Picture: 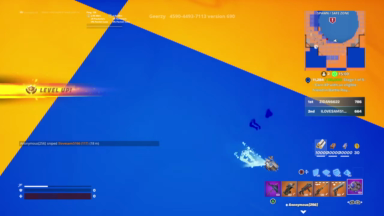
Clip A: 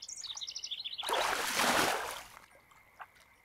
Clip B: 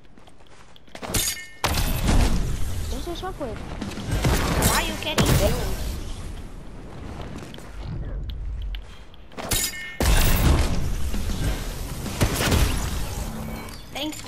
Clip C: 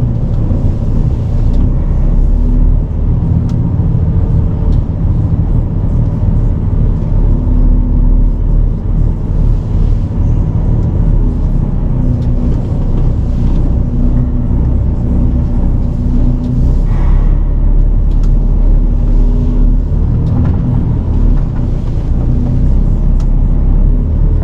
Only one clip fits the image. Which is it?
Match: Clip B